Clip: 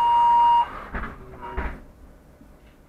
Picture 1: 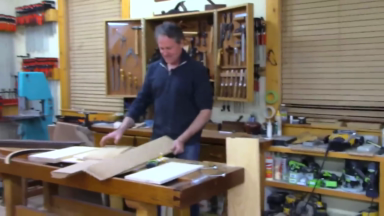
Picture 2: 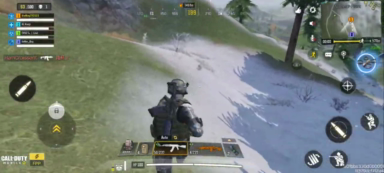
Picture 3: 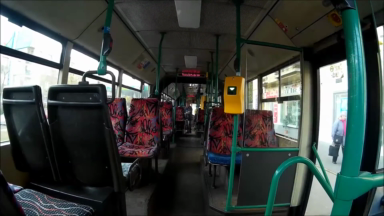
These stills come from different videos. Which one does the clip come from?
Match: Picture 3